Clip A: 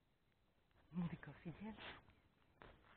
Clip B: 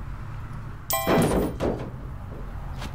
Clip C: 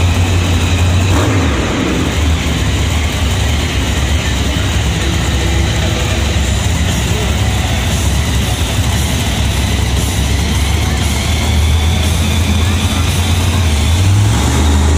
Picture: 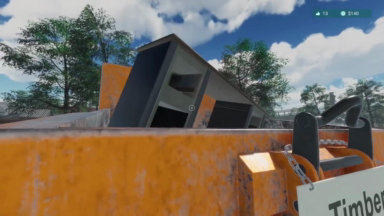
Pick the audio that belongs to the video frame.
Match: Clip B